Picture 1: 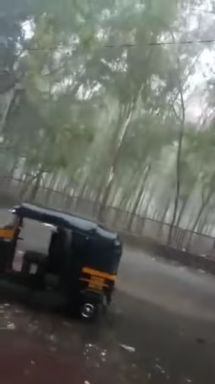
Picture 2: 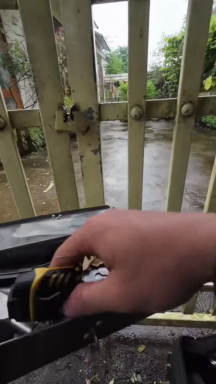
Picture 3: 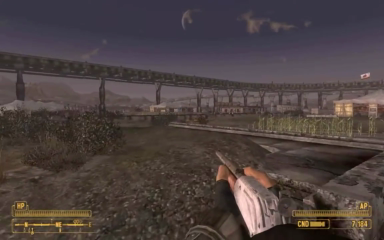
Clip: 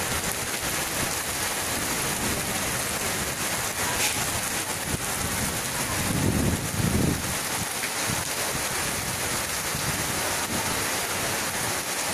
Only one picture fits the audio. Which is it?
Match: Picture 1